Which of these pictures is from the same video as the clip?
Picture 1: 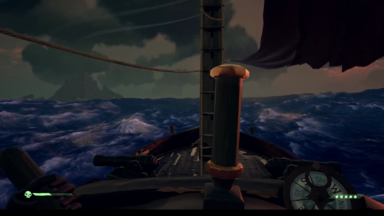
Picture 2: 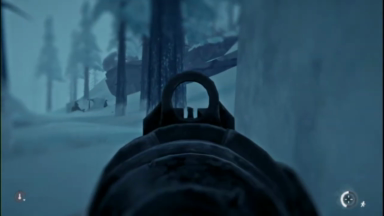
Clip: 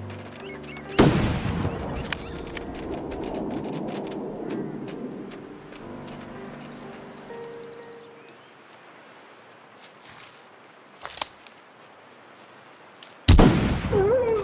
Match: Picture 2